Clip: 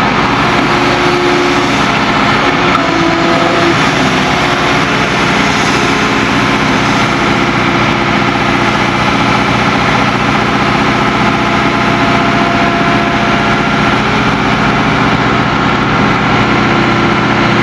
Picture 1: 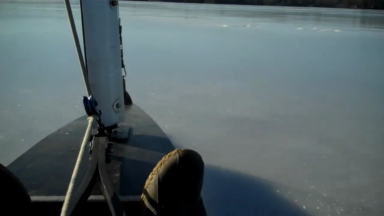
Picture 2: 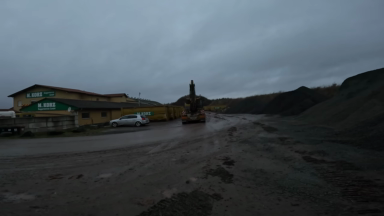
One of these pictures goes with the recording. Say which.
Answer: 2